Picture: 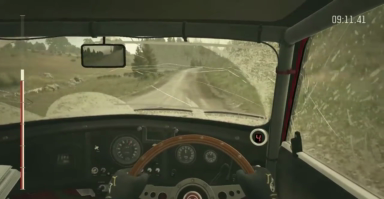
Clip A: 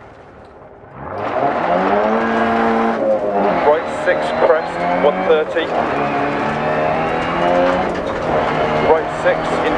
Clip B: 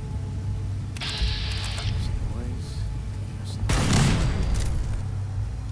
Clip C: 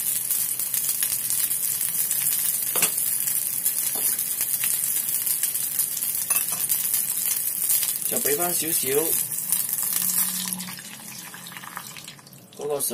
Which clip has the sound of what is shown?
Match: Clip A